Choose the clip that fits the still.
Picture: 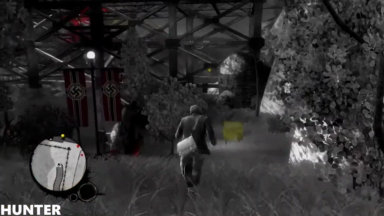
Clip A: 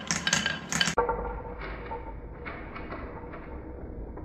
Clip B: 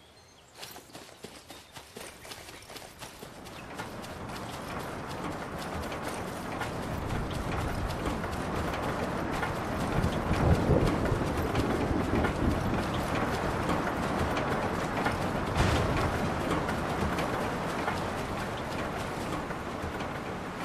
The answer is B